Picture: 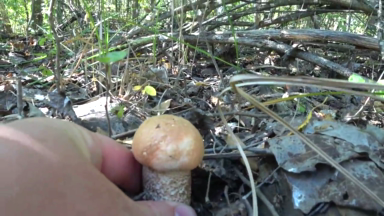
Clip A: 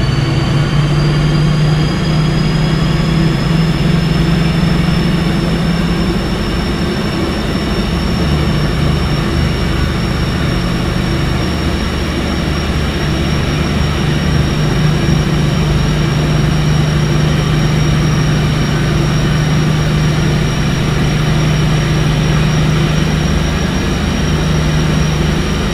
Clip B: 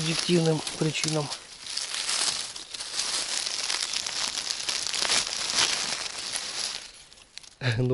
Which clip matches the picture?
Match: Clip B